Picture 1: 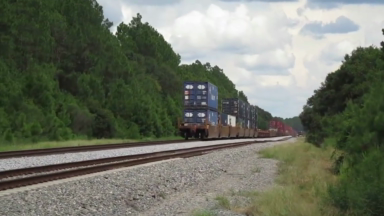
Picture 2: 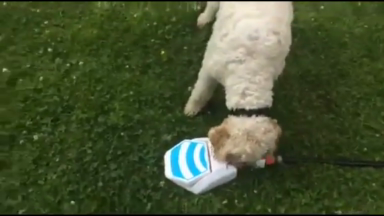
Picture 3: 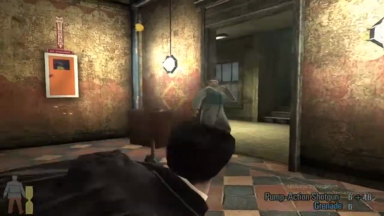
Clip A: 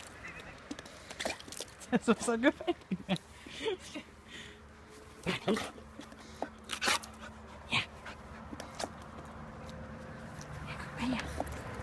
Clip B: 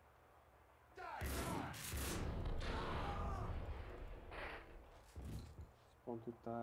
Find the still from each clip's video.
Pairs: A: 2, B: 3